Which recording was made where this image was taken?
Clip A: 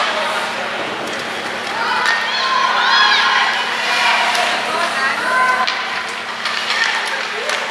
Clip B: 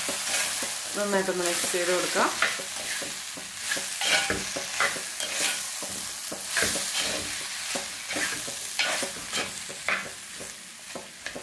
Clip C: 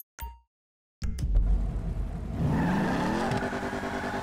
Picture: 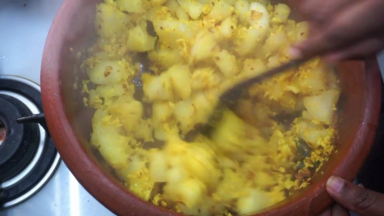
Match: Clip B